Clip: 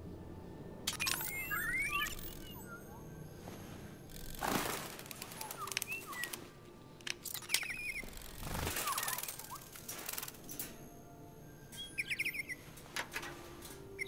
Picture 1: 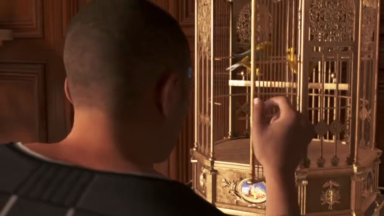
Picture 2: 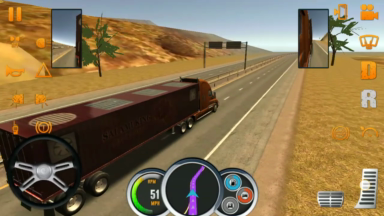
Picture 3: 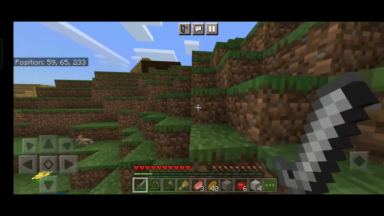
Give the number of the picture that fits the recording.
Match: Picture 1